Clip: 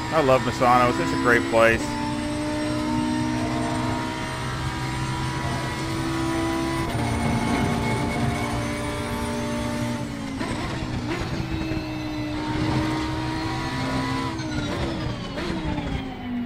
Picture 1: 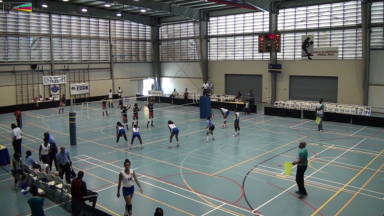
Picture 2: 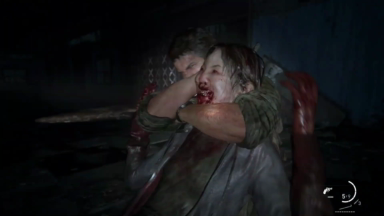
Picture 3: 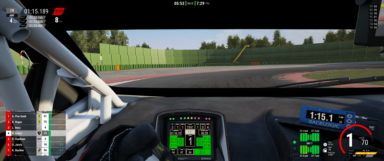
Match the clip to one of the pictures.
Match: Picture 3